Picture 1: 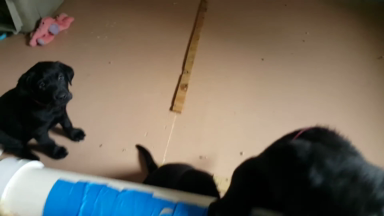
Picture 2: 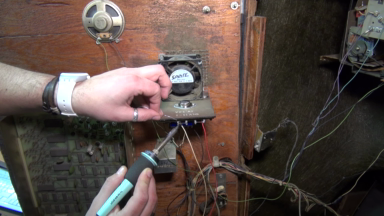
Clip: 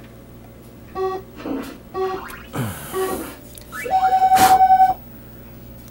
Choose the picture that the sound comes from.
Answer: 2